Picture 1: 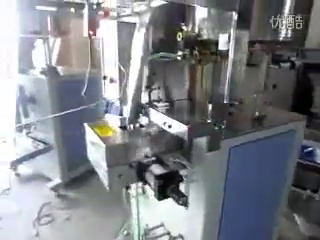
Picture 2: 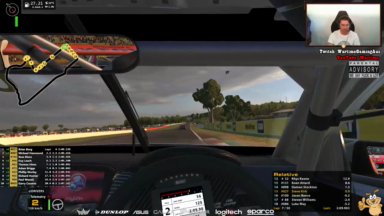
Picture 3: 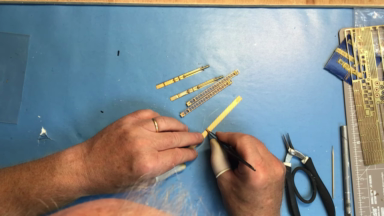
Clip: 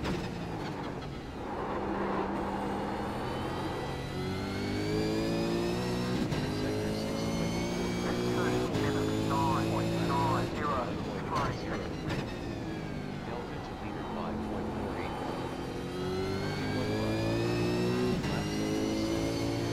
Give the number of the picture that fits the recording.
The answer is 2